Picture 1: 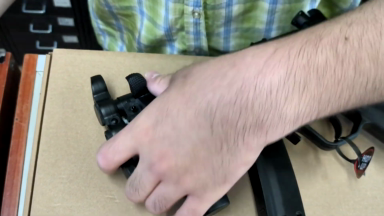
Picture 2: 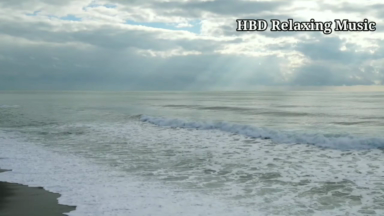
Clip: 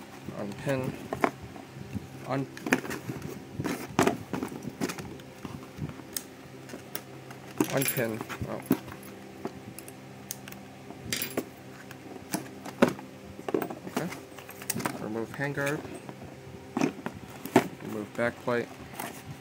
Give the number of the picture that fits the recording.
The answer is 1